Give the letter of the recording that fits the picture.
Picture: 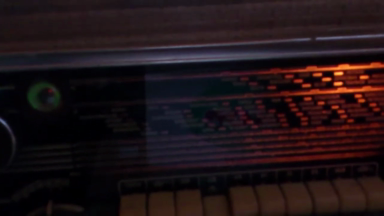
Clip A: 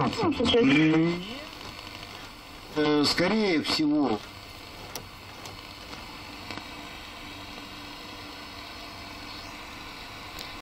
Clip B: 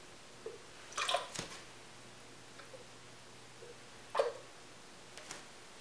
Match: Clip A